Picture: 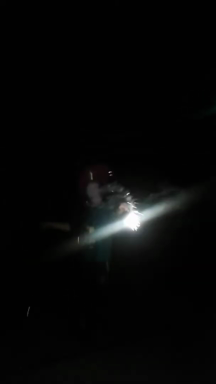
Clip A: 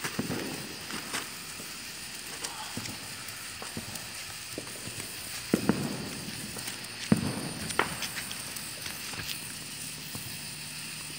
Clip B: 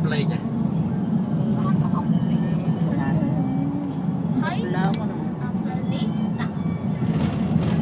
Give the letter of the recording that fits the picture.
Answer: A